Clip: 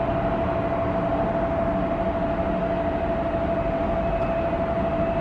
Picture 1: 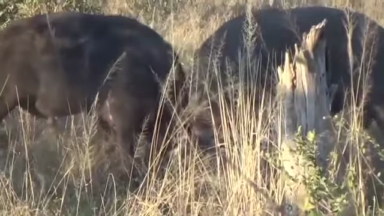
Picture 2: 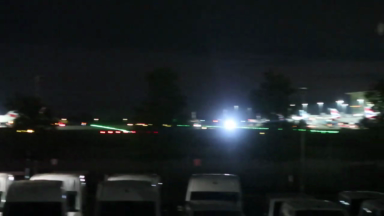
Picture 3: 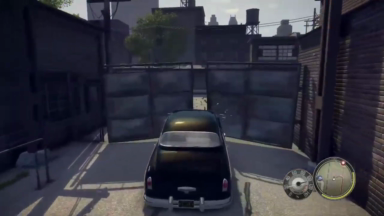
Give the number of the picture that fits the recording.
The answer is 2